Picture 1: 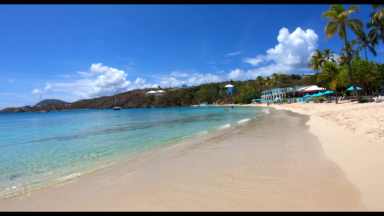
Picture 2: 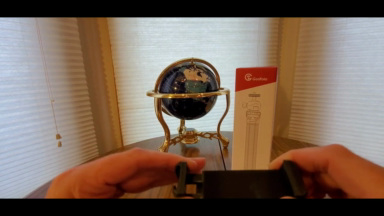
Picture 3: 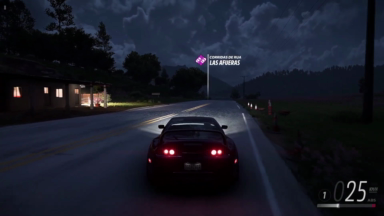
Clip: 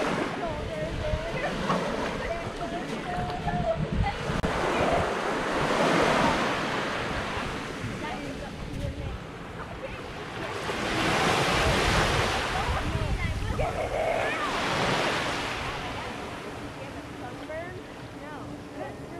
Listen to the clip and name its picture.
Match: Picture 1